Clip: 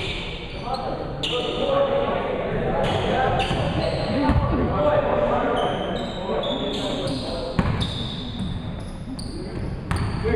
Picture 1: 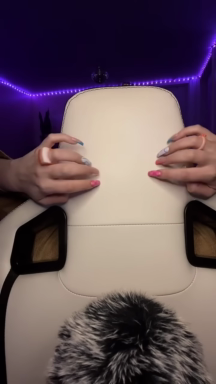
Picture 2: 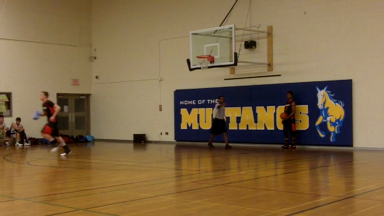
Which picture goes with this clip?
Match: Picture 2